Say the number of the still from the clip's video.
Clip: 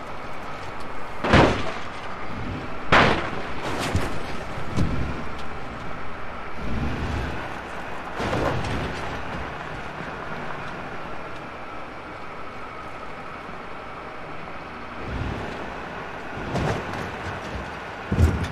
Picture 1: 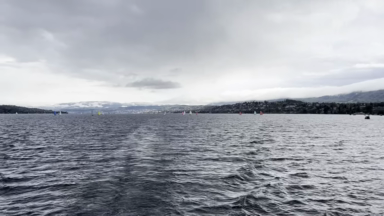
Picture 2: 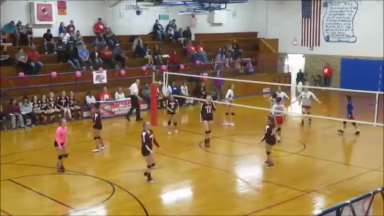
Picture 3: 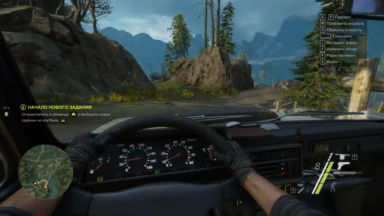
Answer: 3